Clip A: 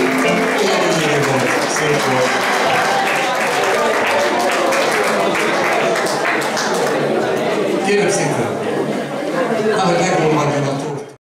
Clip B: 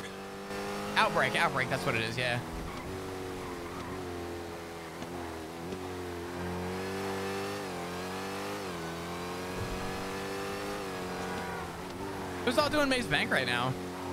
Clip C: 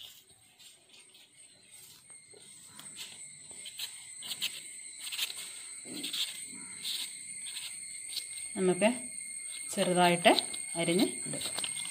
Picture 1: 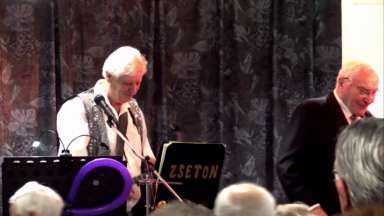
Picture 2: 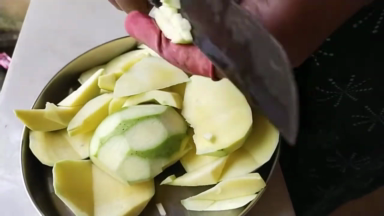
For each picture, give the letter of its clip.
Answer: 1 A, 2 C